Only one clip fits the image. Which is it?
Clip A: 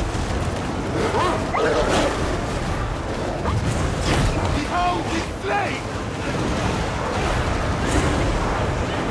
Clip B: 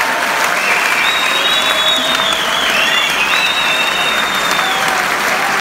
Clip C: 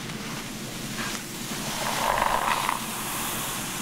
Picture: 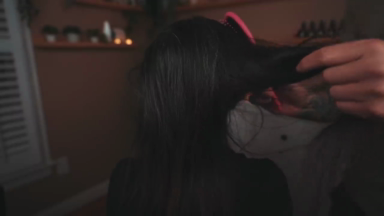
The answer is C